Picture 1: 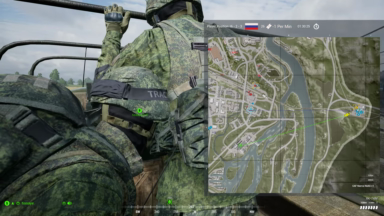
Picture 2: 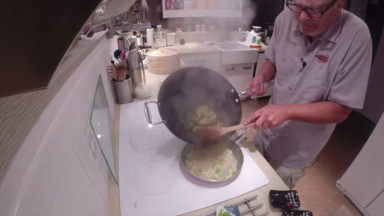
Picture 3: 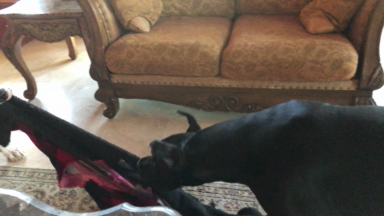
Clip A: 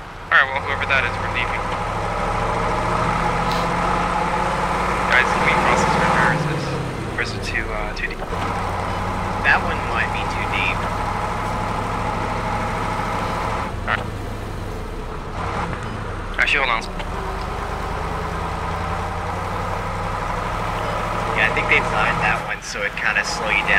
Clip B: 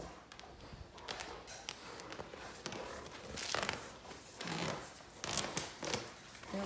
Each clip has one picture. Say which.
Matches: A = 1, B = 3